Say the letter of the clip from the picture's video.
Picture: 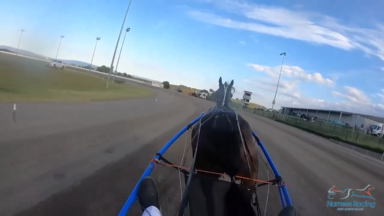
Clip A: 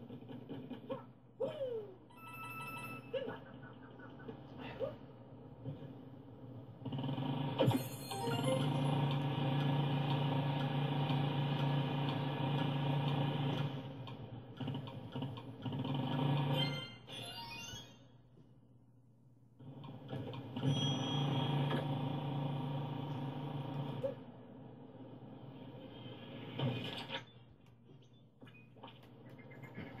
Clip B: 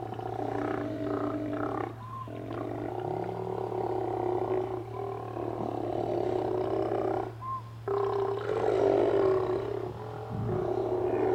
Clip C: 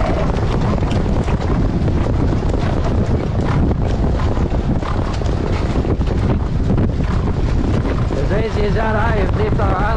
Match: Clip C